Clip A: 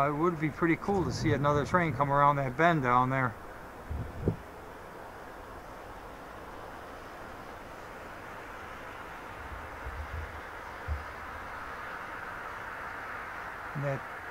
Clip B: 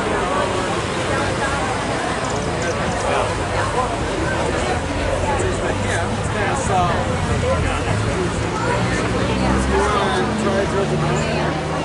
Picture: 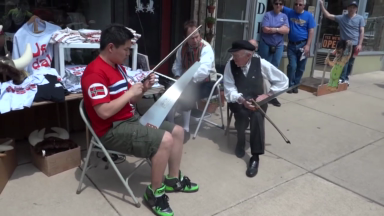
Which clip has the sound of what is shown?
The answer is B